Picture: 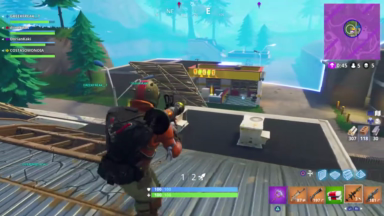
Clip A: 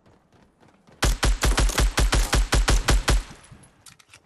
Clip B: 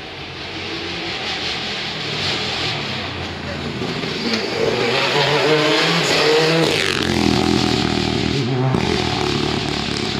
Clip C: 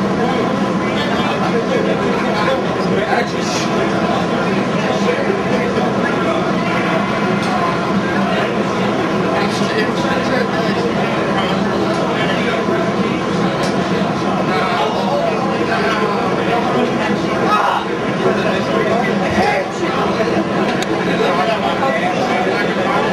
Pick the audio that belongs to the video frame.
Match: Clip A